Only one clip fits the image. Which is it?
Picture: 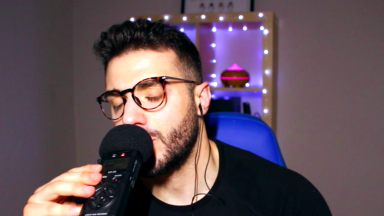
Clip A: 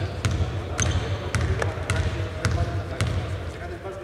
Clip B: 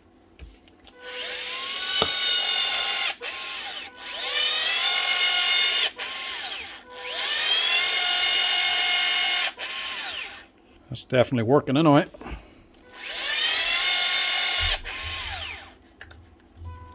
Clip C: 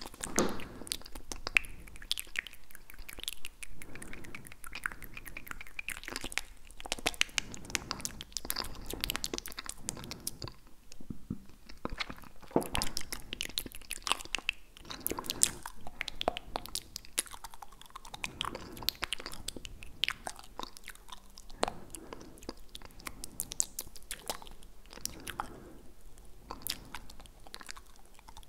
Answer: C